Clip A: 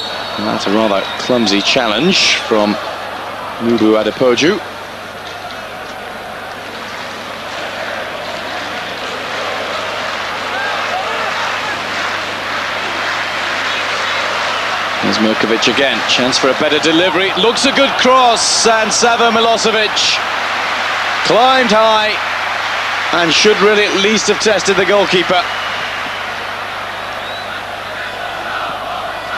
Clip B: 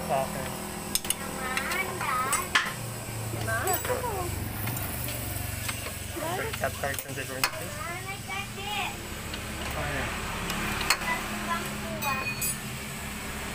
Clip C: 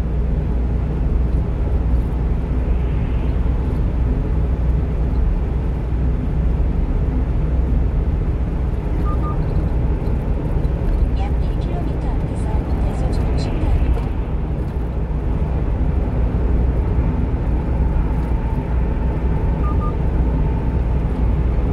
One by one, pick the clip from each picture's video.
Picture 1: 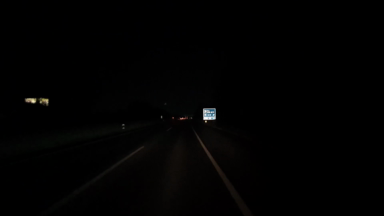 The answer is C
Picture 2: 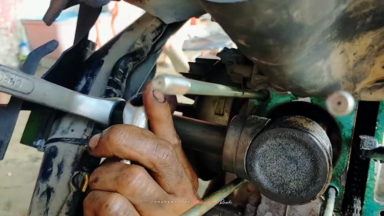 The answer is B